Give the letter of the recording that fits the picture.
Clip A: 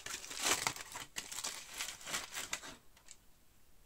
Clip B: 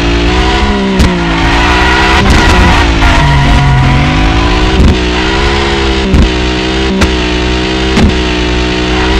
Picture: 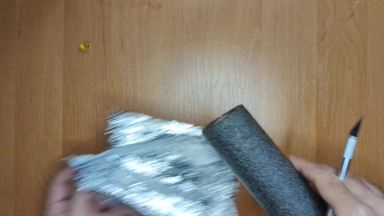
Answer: A